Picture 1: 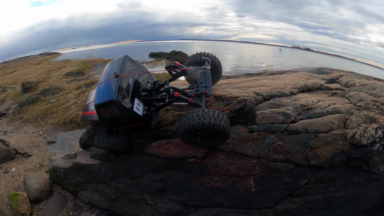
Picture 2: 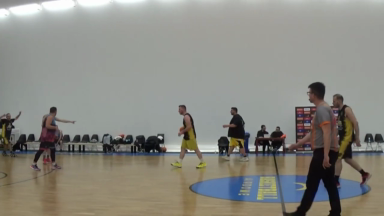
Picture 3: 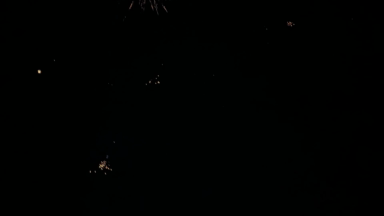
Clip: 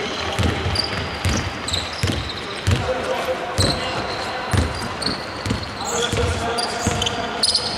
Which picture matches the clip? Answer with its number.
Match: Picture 2